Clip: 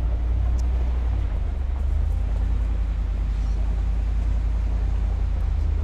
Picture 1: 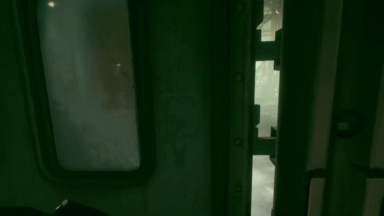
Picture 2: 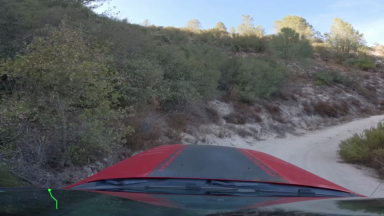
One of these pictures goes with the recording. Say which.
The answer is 2